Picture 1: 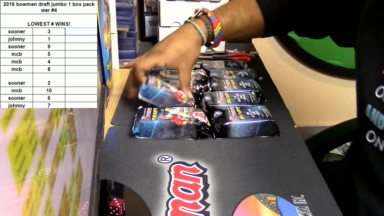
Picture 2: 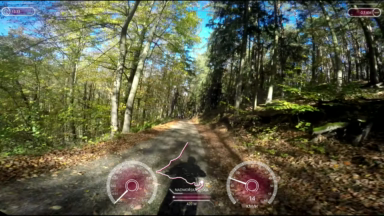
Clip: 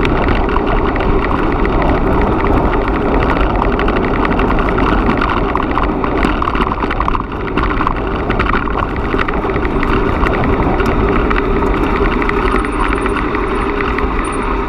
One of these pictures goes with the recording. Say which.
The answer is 2